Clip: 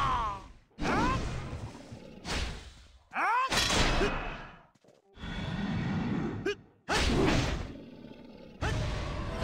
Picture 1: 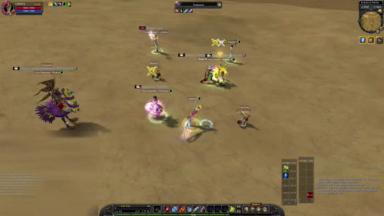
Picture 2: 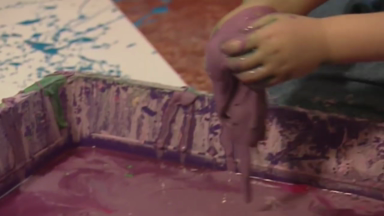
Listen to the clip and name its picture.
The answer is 1